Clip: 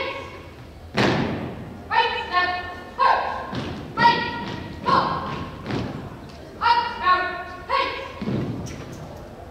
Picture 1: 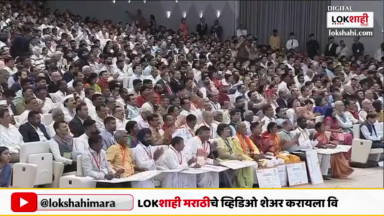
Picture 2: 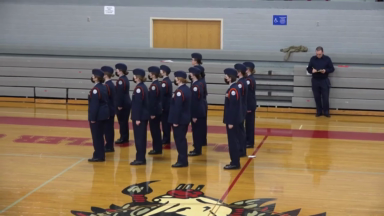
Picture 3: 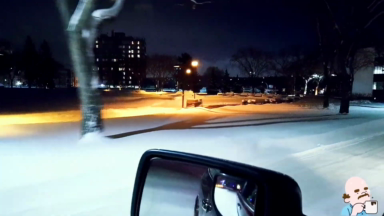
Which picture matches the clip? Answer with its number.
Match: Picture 2